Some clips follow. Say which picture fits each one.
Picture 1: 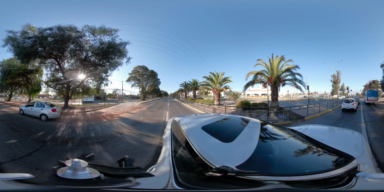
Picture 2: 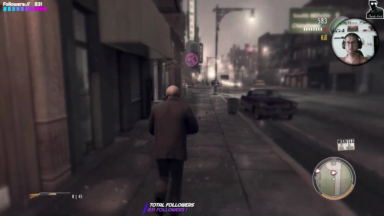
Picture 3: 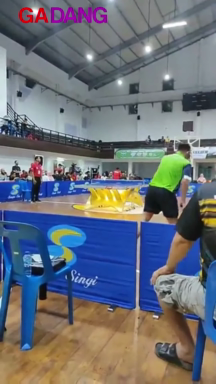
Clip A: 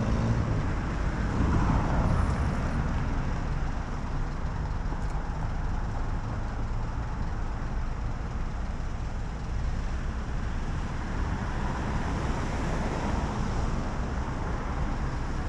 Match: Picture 1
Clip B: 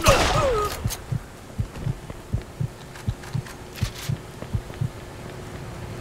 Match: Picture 2